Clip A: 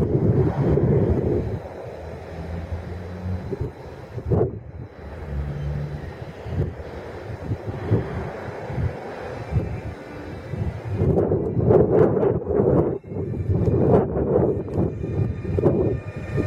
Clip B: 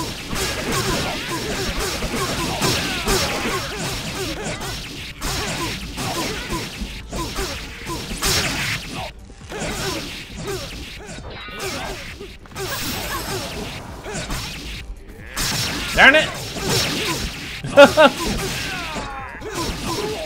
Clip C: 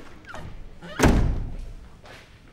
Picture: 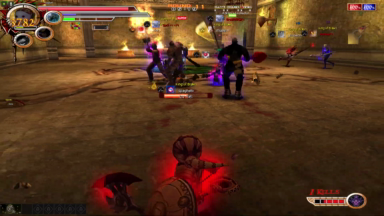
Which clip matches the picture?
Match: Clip B